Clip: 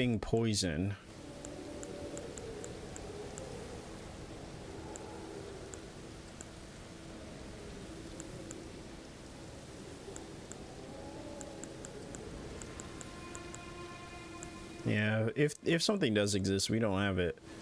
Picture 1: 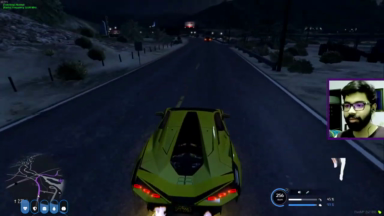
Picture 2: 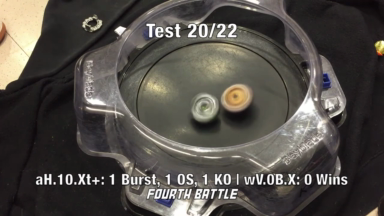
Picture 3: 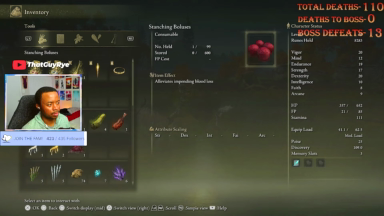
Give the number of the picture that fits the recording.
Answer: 3